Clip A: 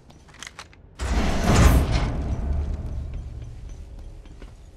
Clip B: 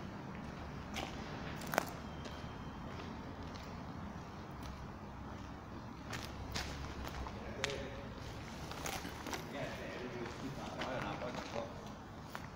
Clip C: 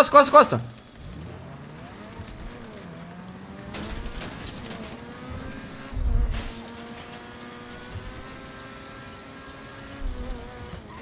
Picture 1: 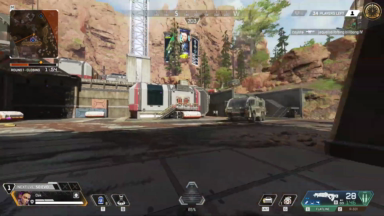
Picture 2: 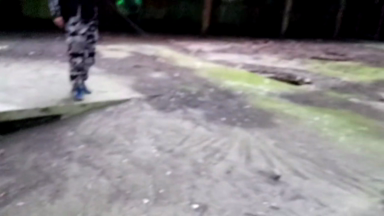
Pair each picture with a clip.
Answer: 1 A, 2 B